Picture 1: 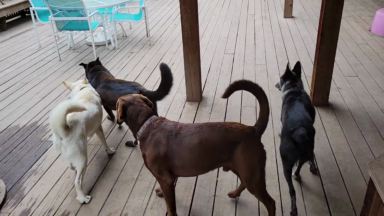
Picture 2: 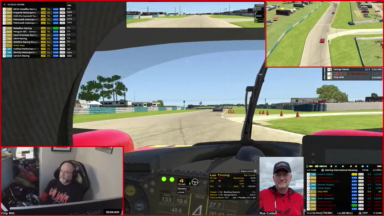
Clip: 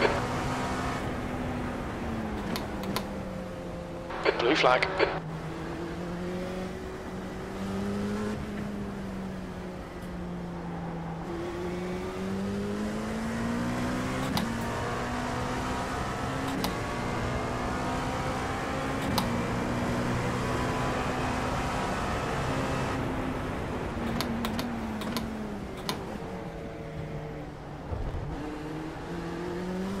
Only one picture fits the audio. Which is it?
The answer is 2